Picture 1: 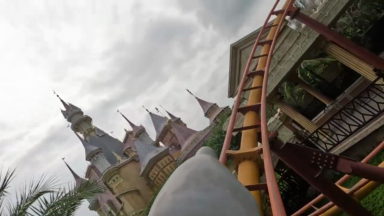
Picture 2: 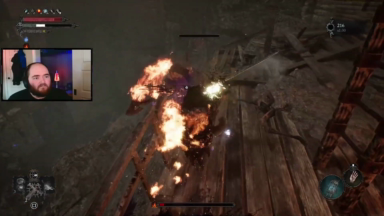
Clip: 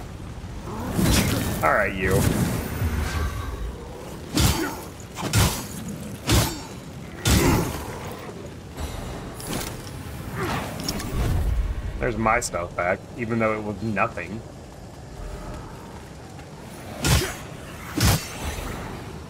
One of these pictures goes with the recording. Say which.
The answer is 2